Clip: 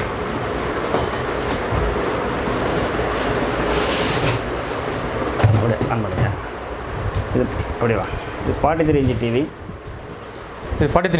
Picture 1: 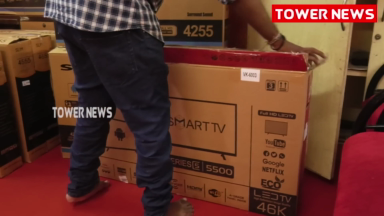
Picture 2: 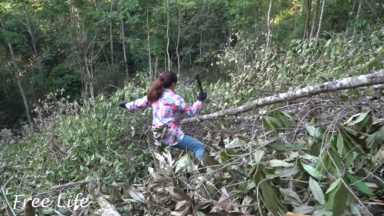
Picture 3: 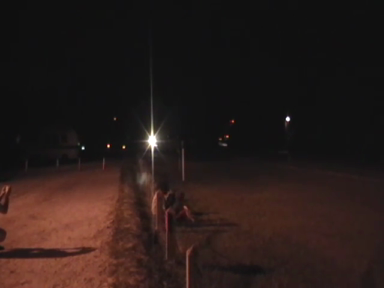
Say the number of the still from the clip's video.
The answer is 1